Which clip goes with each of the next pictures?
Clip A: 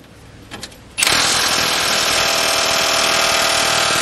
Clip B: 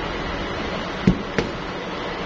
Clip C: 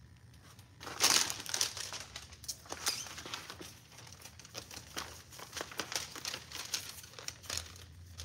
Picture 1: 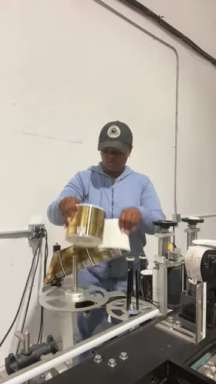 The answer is C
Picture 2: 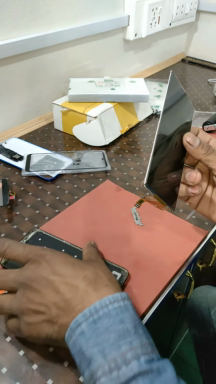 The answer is B